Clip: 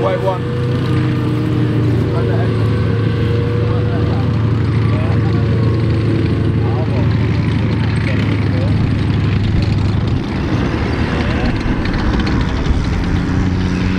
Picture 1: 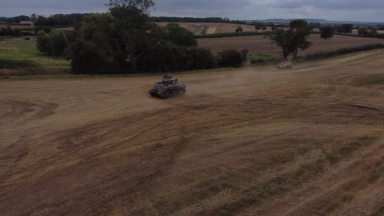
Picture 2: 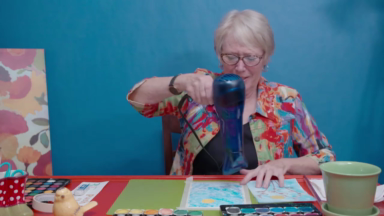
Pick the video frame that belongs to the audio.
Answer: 1